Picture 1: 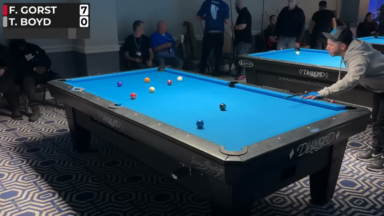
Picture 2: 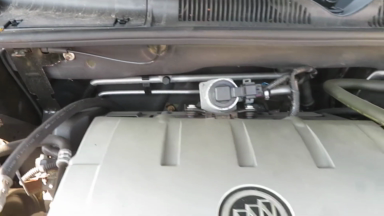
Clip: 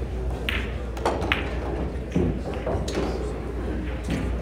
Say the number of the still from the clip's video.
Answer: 1